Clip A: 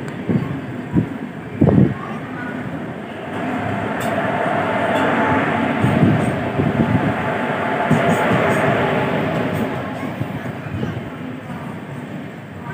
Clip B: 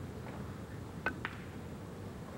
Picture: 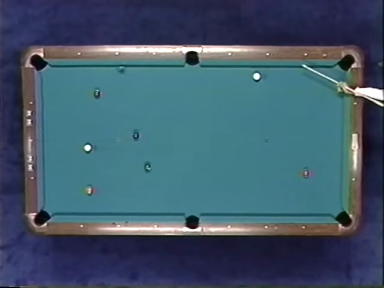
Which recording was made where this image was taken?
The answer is B